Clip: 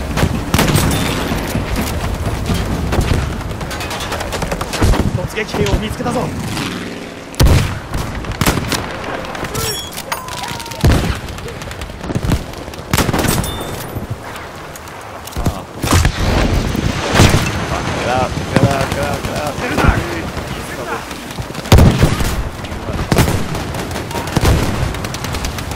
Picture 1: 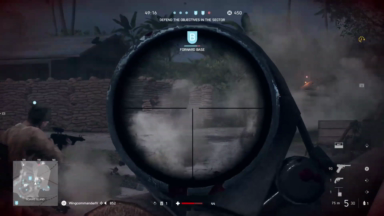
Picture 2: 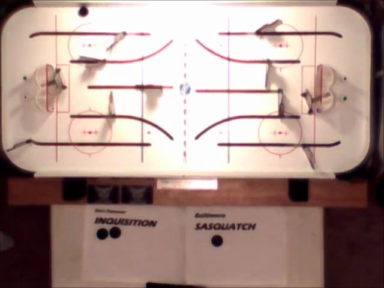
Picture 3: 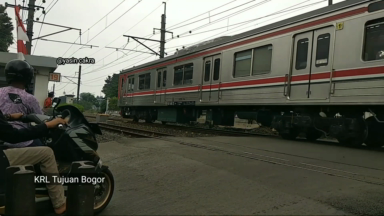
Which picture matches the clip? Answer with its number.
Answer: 1